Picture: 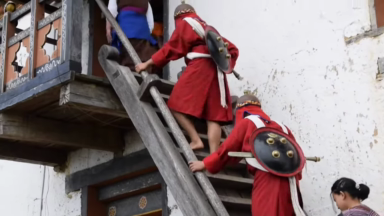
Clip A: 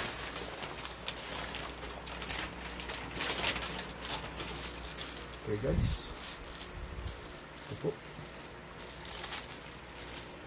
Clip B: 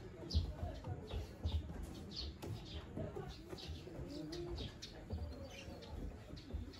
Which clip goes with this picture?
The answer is B